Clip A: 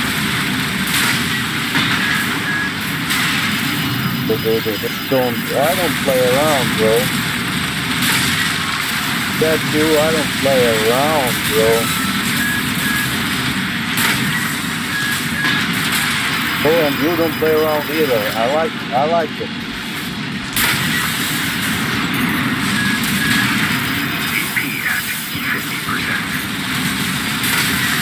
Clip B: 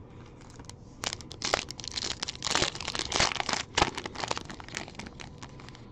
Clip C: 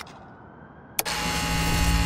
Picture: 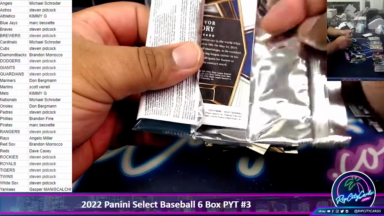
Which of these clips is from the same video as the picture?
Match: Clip B